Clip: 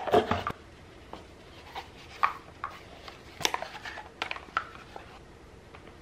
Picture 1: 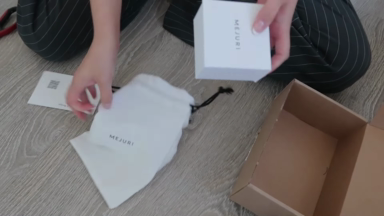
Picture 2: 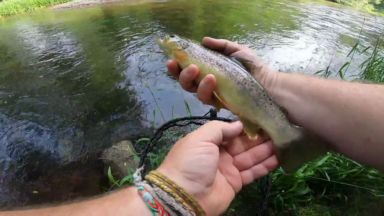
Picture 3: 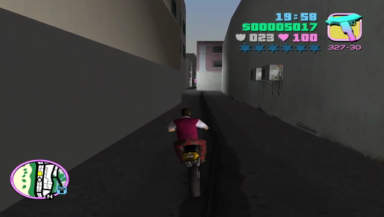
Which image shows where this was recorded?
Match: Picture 1